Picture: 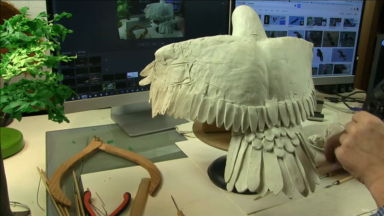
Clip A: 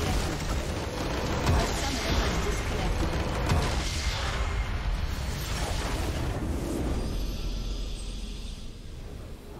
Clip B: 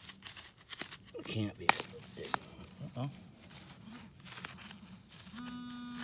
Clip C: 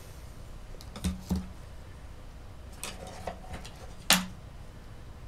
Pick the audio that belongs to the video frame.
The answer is C